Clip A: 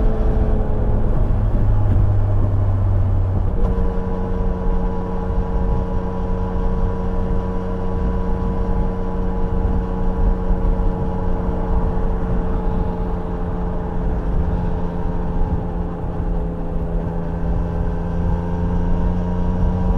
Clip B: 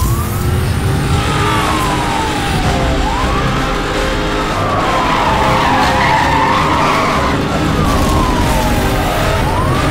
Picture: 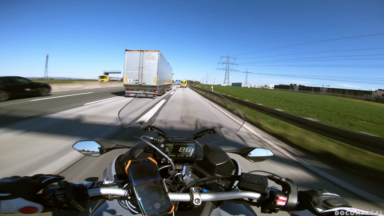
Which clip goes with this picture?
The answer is A